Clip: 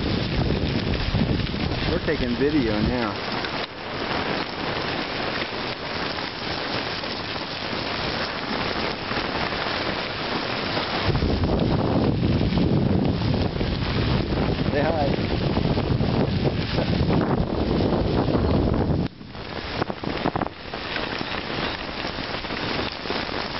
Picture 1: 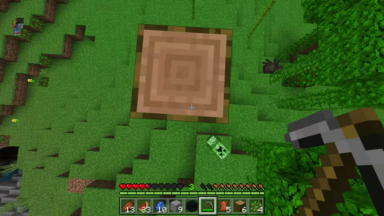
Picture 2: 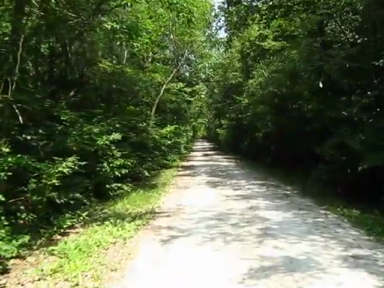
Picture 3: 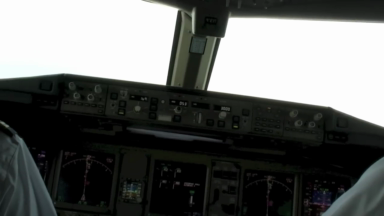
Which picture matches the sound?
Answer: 2